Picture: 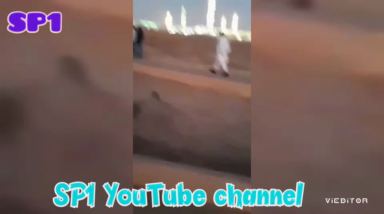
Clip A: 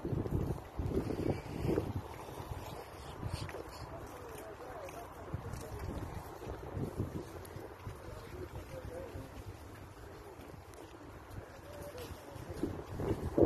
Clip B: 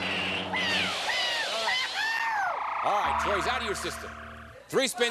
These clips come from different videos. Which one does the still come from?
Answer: A